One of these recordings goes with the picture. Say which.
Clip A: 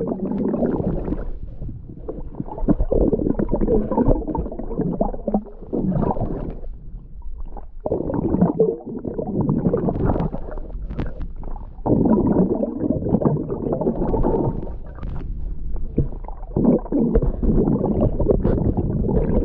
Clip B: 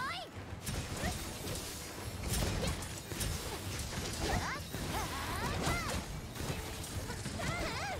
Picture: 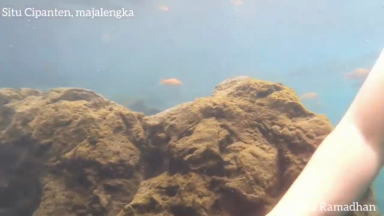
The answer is A